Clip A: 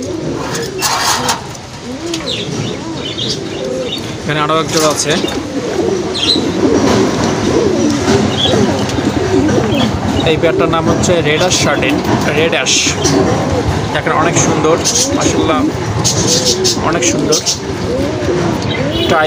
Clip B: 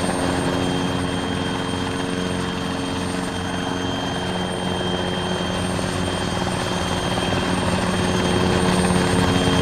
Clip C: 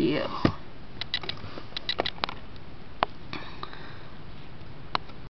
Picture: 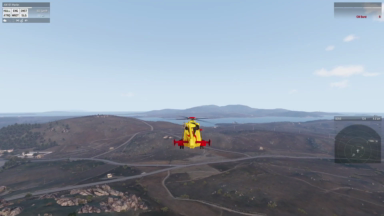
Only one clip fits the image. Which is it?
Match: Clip B